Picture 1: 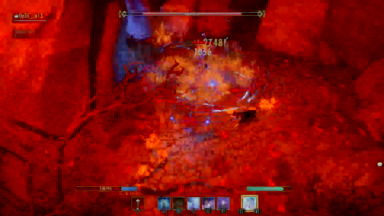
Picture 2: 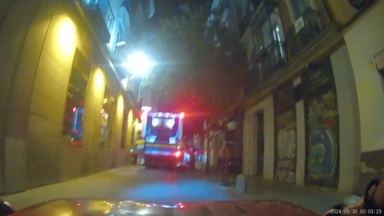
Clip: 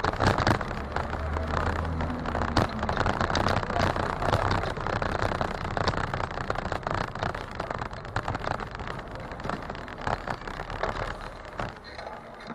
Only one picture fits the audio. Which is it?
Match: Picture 2